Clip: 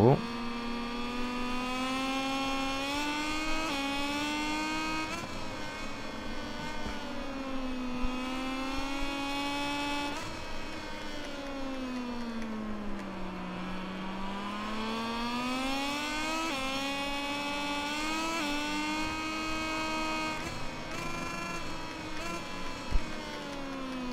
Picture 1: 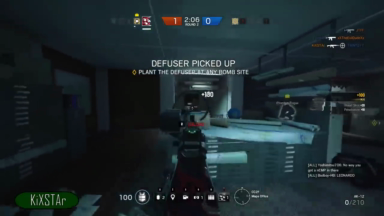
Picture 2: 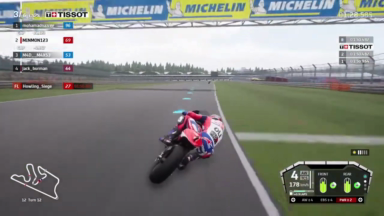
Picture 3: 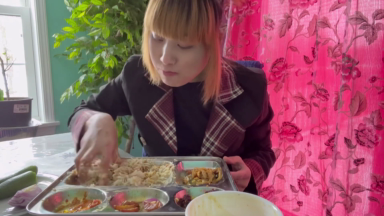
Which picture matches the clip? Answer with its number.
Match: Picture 2